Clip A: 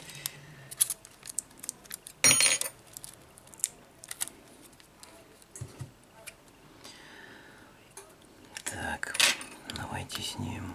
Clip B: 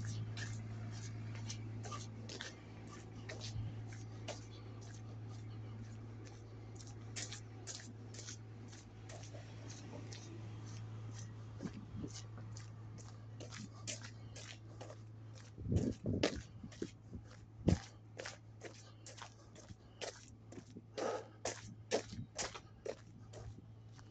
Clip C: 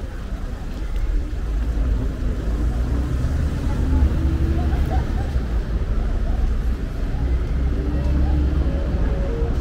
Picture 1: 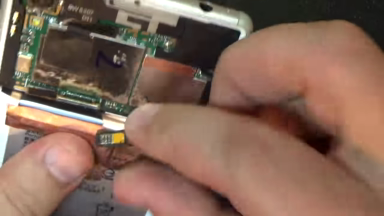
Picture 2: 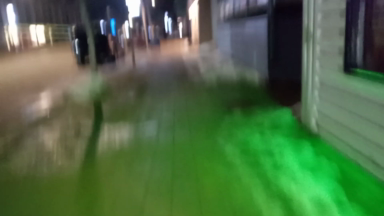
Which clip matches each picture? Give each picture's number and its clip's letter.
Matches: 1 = A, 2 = B